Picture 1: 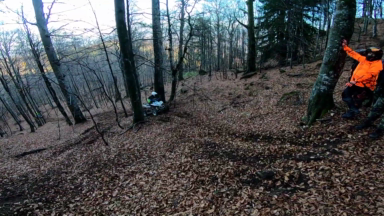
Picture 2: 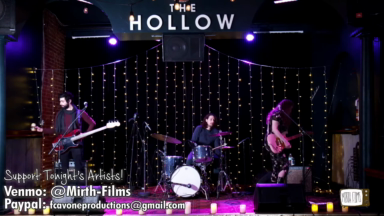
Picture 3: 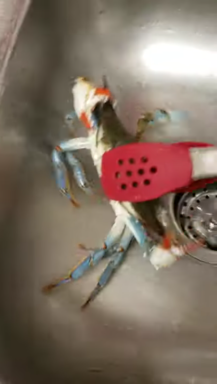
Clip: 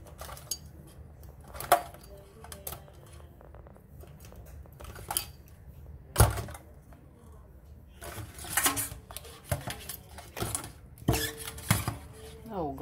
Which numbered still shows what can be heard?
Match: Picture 3